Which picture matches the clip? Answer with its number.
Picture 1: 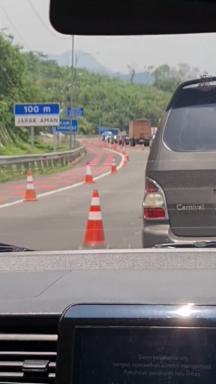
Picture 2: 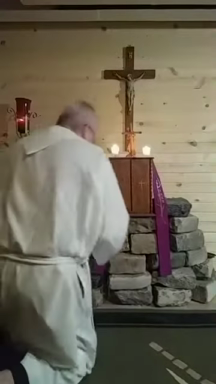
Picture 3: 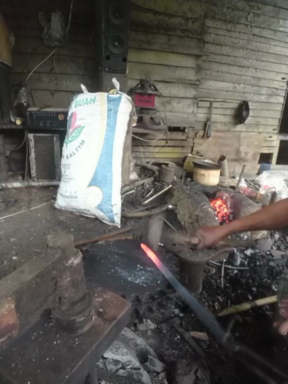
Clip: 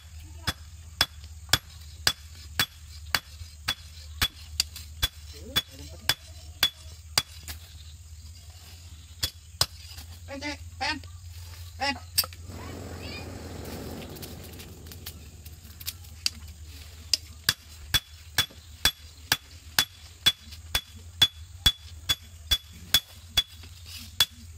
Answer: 3